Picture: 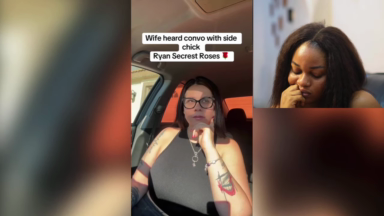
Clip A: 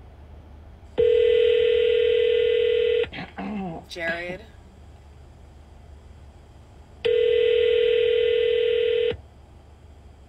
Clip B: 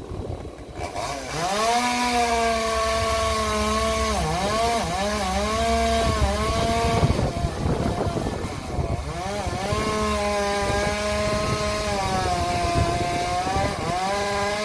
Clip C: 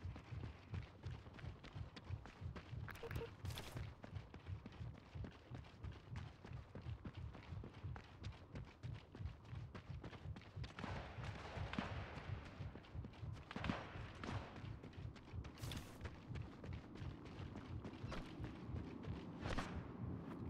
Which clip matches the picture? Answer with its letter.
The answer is A